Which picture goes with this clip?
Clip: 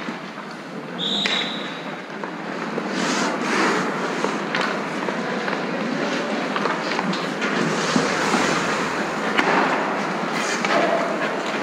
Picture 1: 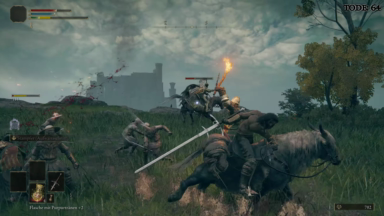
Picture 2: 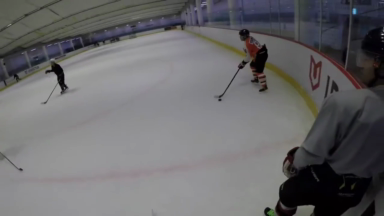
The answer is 2